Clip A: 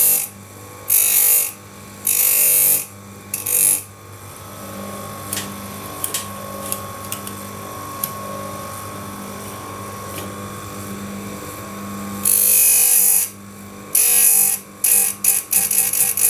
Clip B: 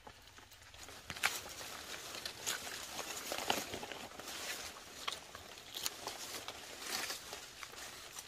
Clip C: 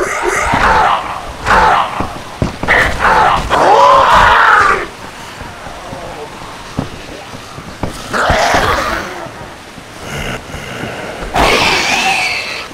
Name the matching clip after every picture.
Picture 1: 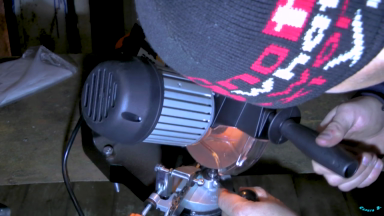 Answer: A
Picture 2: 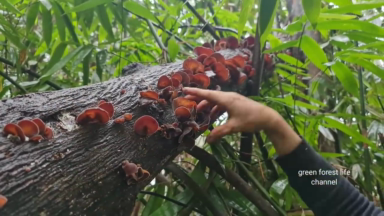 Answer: B